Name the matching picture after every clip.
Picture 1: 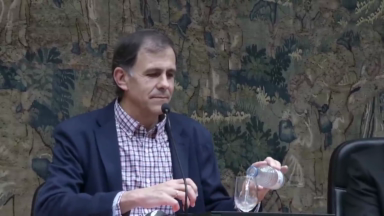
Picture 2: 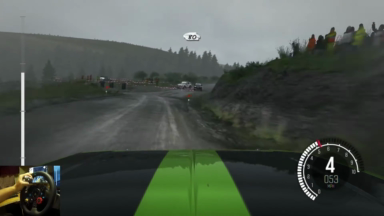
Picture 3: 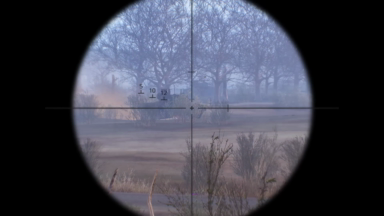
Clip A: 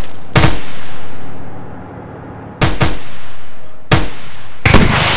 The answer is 3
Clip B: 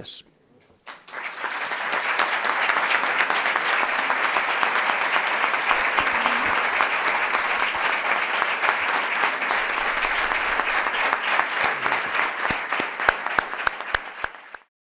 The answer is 1